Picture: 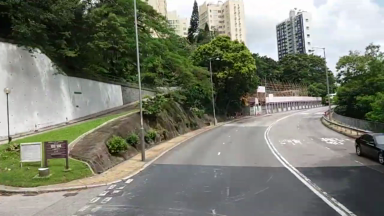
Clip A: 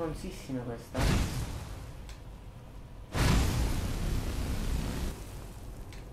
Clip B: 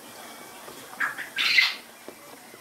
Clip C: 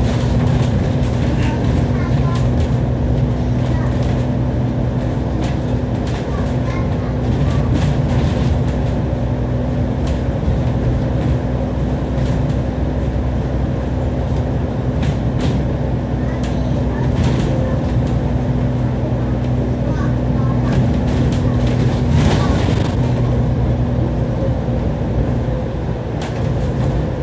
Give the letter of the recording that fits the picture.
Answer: C